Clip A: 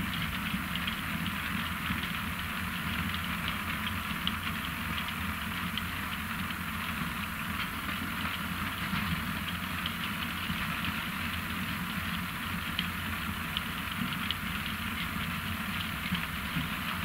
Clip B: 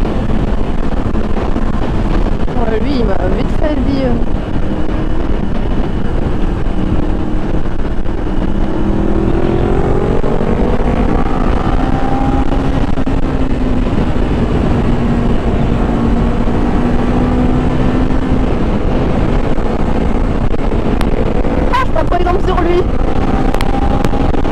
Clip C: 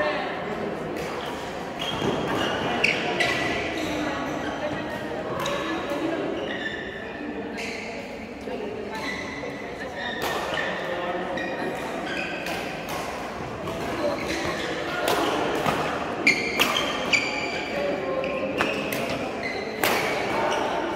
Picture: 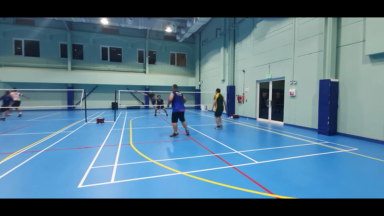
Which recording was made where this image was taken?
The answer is C